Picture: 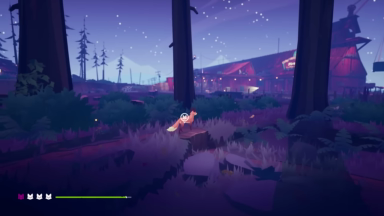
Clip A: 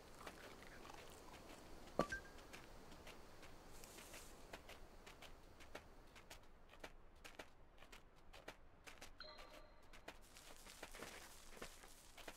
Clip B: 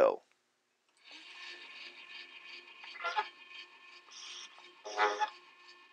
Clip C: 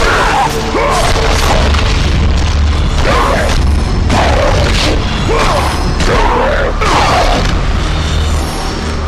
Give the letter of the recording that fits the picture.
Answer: A